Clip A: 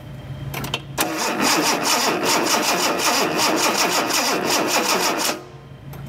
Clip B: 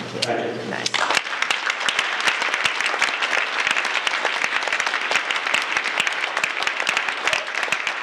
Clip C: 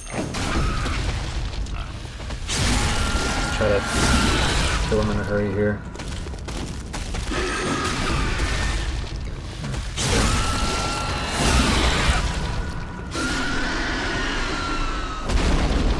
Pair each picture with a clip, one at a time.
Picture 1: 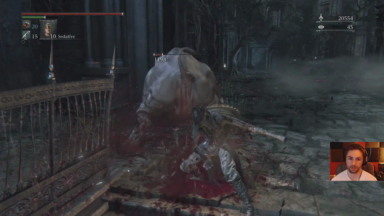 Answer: C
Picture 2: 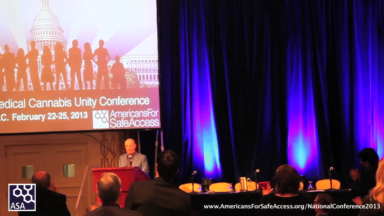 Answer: B